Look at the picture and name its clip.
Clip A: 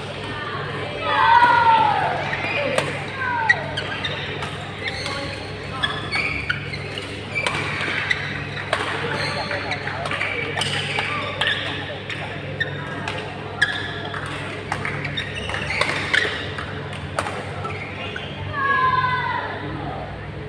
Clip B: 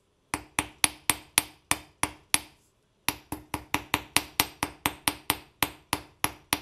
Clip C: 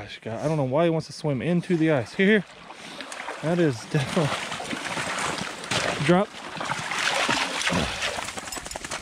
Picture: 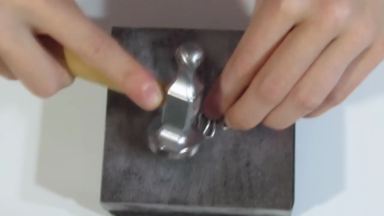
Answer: B